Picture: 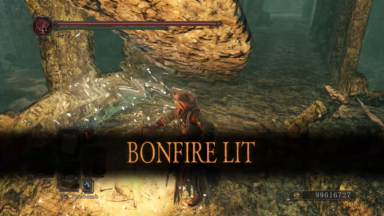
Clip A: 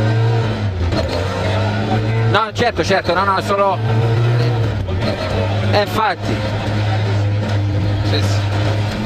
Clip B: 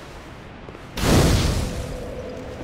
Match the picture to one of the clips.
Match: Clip B